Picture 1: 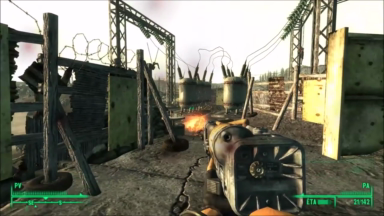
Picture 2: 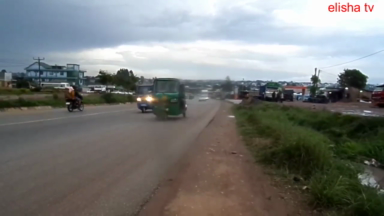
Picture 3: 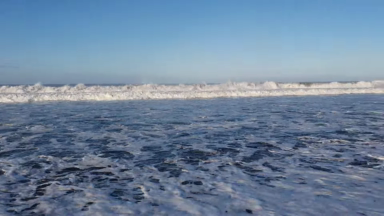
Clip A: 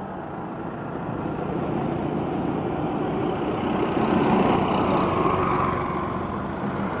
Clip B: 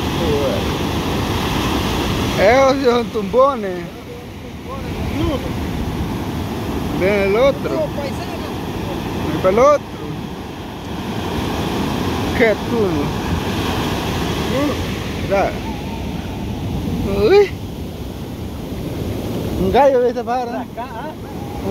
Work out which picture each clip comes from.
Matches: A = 2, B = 3